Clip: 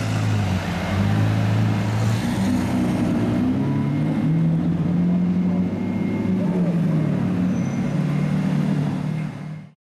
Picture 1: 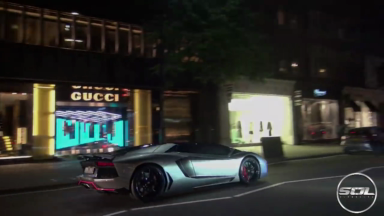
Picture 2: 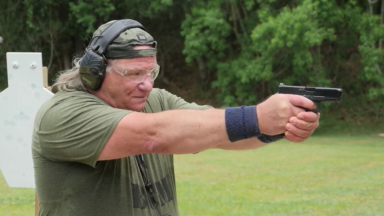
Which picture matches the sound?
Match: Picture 1